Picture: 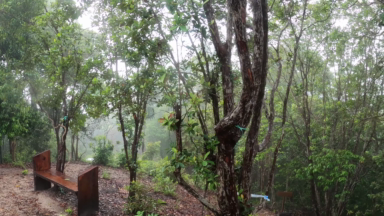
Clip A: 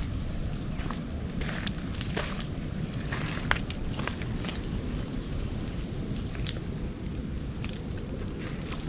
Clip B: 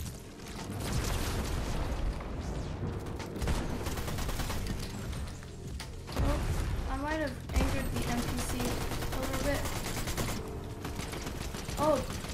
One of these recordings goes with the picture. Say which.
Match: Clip A